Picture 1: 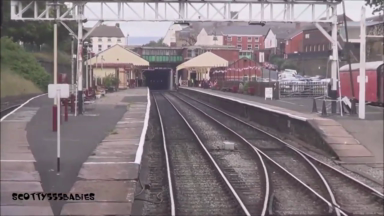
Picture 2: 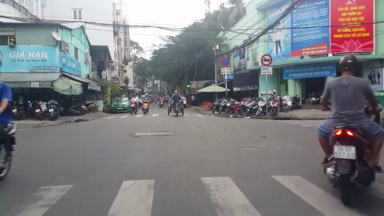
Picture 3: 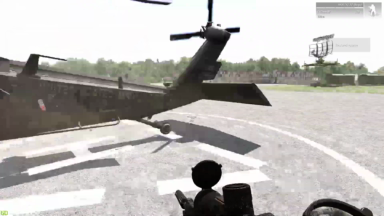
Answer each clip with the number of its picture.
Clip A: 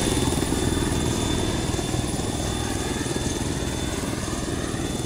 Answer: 3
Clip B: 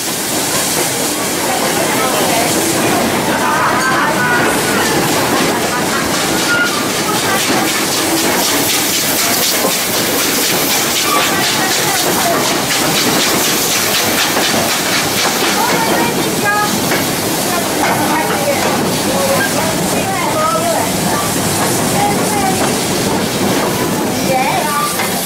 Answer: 1